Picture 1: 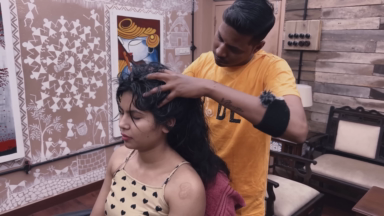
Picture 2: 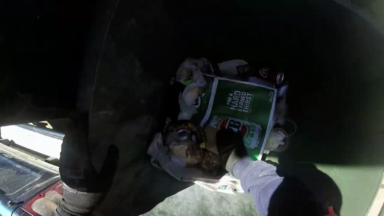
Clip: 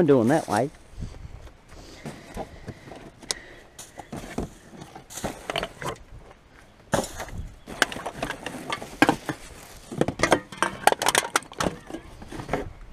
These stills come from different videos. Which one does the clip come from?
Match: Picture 2